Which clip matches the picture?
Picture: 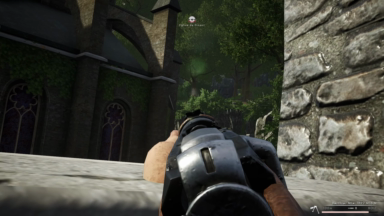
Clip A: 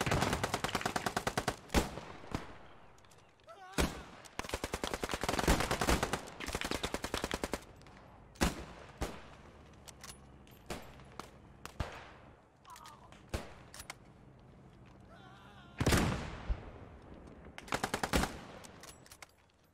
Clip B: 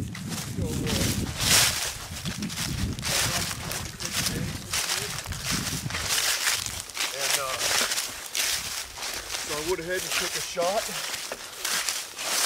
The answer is A